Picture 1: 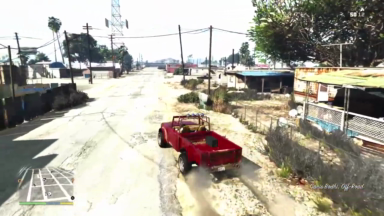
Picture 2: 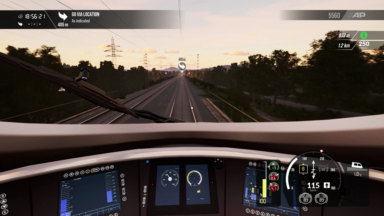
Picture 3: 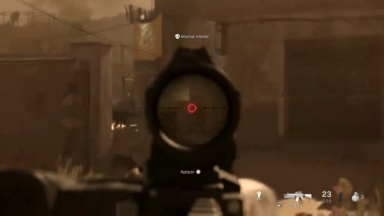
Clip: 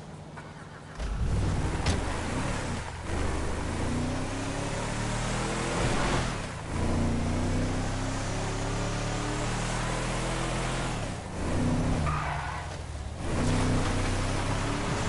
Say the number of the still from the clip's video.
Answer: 1